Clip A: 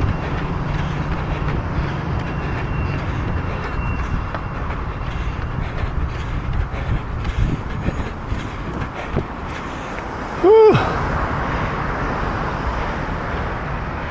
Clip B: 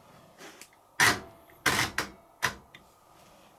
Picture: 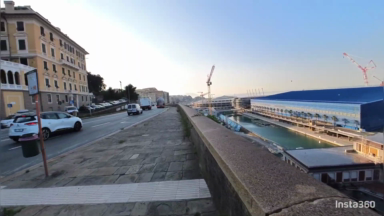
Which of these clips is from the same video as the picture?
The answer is A